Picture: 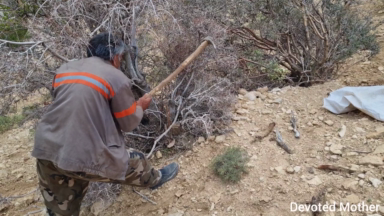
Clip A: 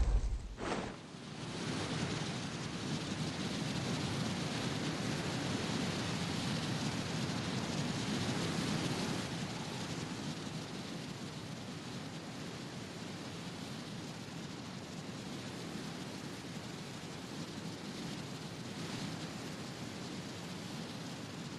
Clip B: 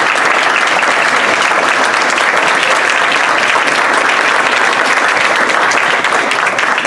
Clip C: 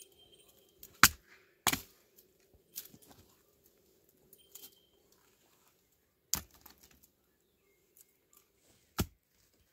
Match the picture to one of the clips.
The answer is C